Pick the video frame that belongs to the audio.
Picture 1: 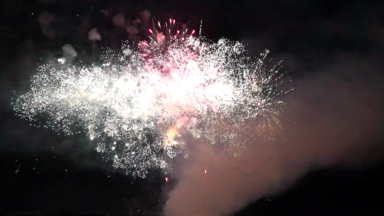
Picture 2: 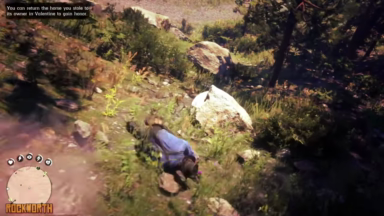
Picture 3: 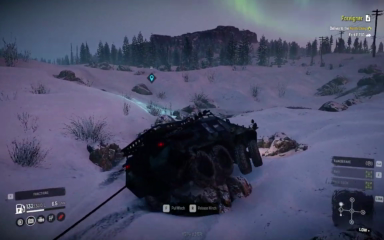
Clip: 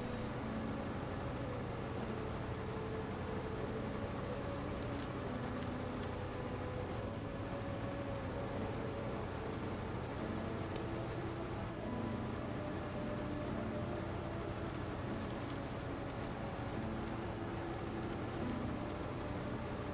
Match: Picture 3